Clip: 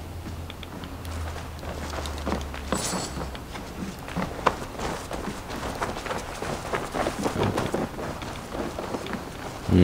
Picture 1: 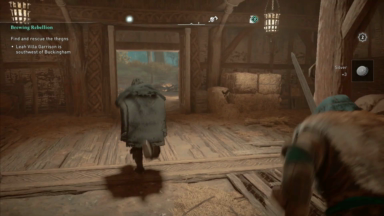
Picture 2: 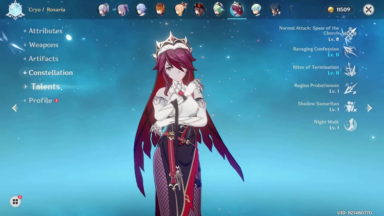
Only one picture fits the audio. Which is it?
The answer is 1